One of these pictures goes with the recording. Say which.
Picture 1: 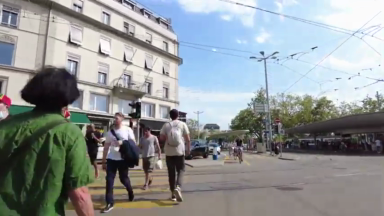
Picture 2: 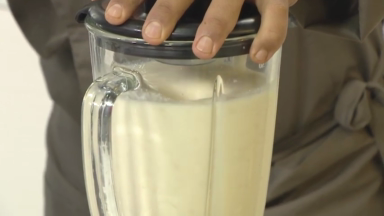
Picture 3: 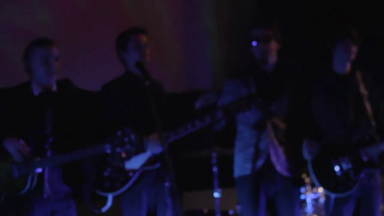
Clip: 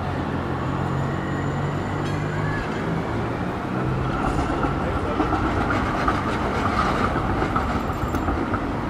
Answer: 1